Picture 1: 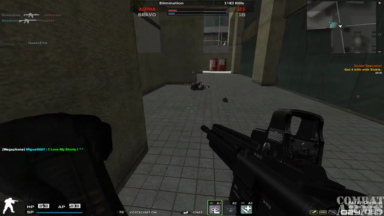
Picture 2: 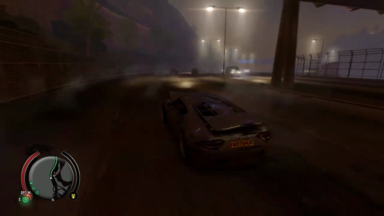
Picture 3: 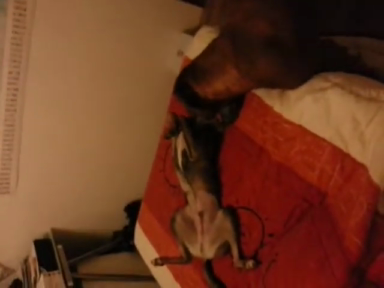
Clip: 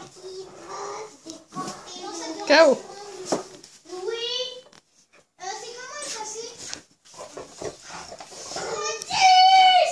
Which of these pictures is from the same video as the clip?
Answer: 3